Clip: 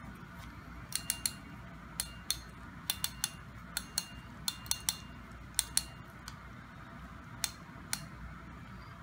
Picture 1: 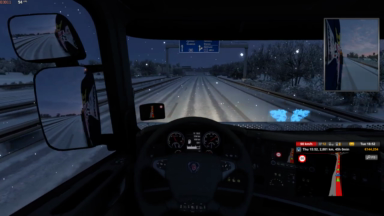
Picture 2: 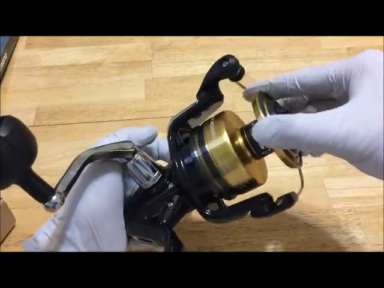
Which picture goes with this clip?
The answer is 2